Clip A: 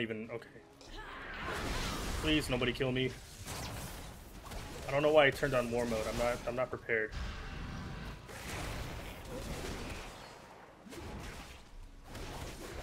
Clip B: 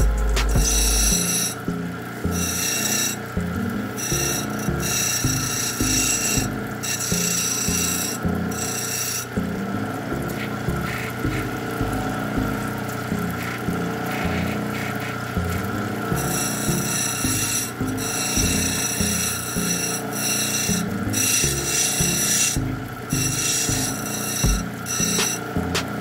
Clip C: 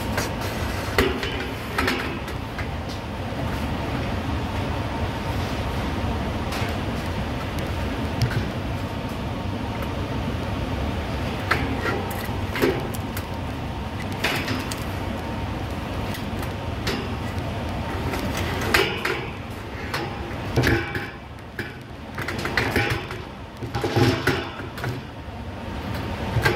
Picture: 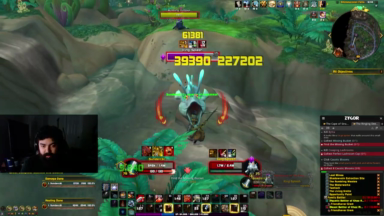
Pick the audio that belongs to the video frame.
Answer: A